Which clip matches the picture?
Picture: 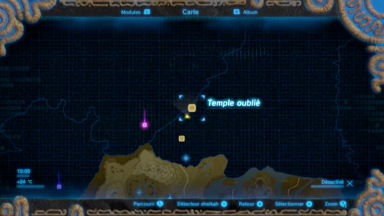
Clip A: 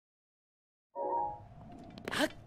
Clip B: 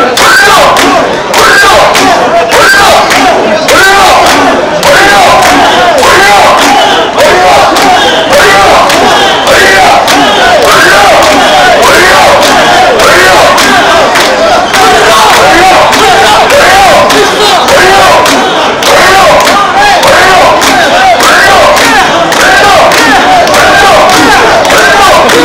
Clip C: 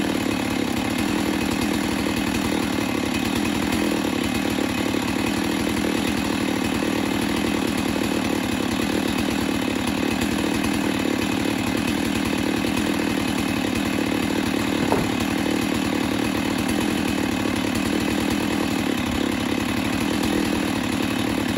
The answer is A